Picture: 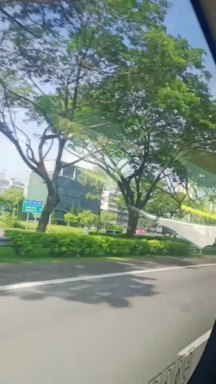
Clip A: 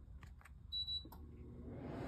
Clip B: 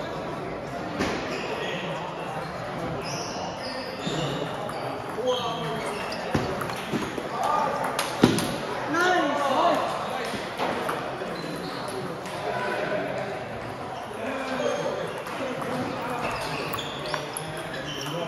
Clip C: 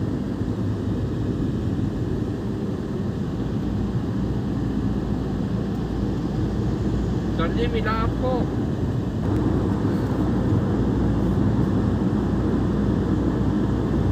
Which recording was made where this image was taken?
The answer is C